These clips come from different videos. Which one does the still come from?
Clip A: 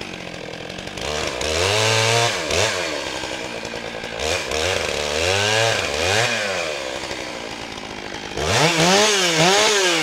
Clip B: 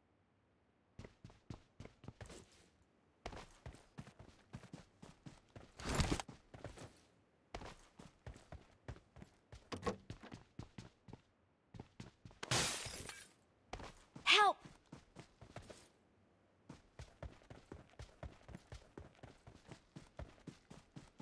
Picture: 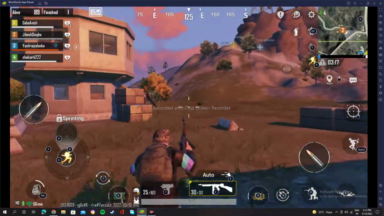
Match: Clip B